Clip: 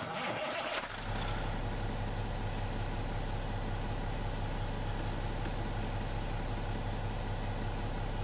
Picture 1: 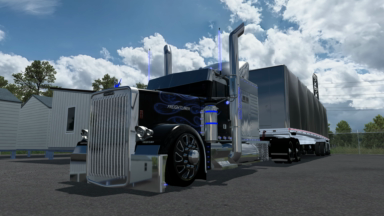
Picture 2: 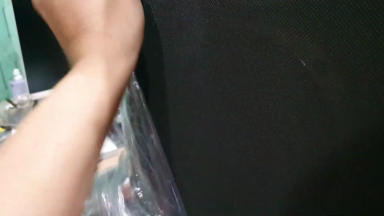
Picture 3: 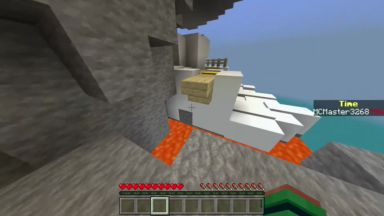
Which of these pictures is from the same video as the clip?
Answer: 1